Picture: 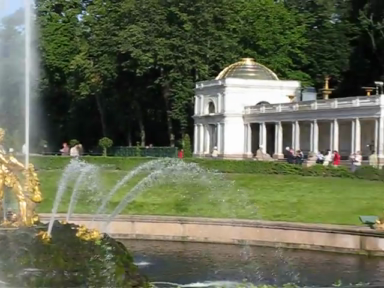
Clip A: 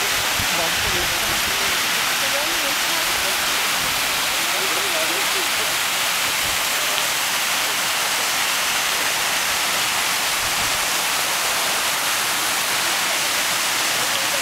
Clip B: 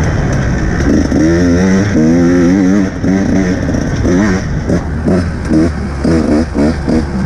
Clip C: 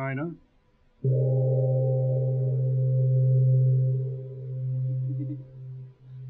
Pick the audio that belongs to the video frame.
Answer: A